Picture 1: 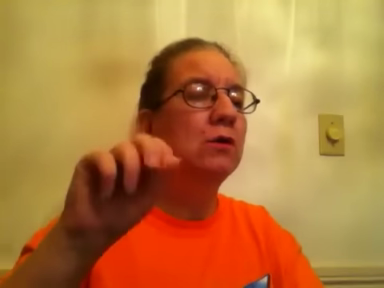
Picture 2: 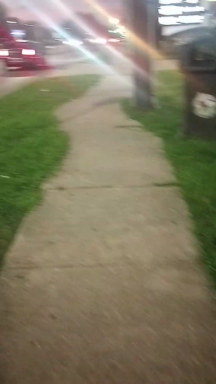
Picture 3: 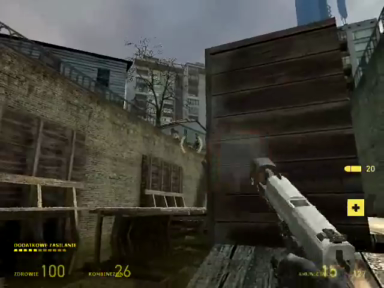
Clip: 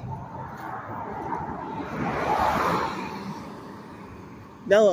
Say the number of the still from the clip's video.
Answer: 2